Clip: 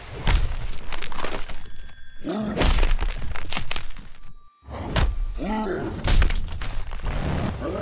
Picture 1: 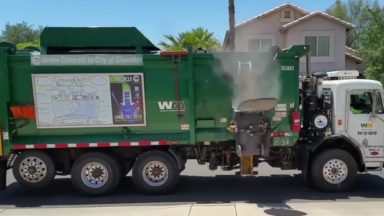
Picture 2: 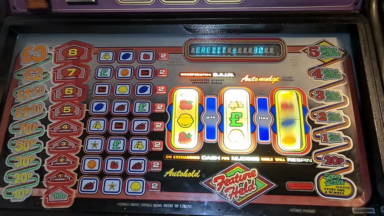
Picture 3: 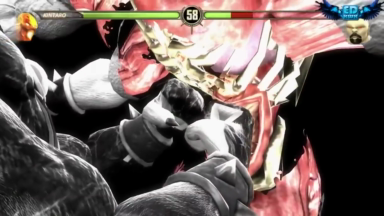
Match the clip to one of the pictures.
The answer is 3